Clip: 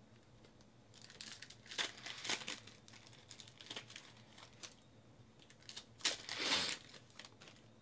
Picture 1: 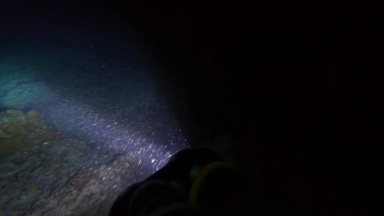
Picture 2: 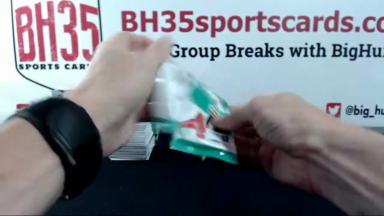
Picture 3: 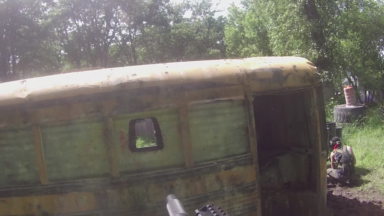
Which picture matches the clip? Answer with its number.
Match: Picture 2